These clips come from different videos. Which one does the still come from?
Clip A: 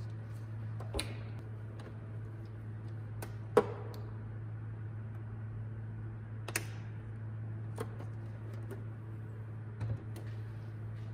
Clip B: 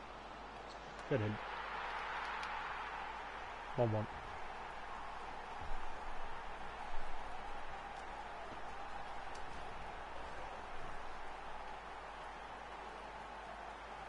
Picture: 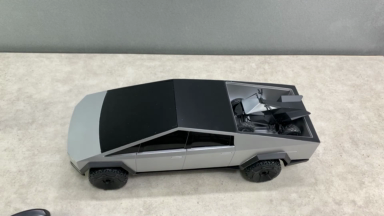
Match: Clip A